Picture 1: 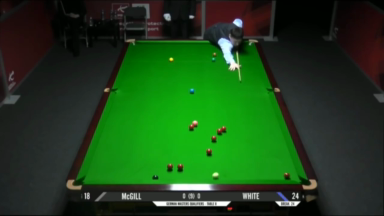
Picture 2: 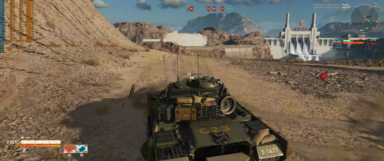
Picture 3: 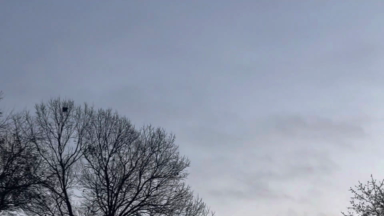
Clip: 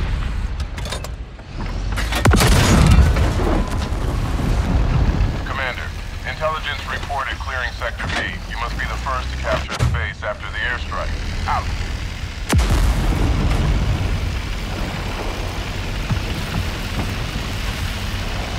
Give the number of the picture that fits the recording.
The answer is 2